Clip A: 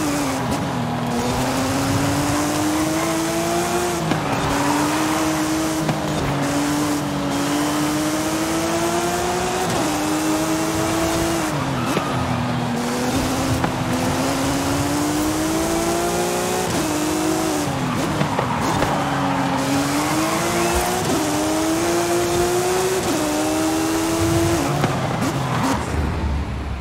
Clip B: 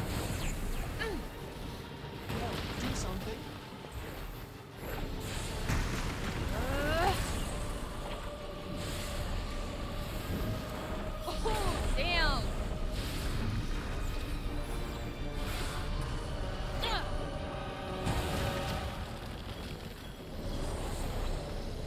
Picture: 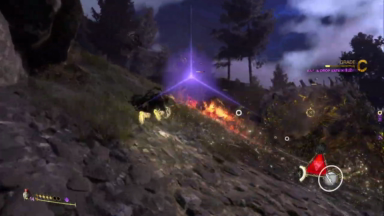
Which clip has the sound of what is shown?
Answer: B